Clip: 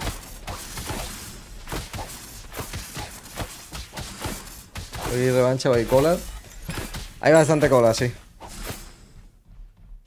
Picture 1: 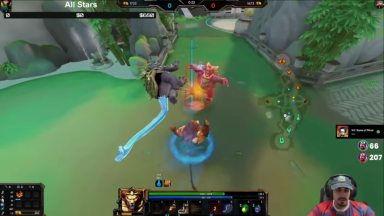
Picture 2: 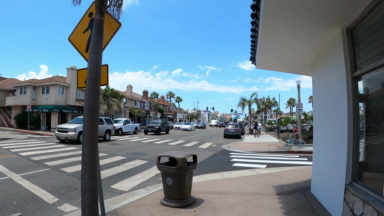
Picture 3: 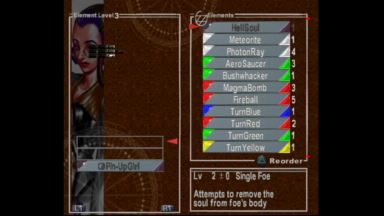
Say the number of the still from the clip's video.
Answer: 1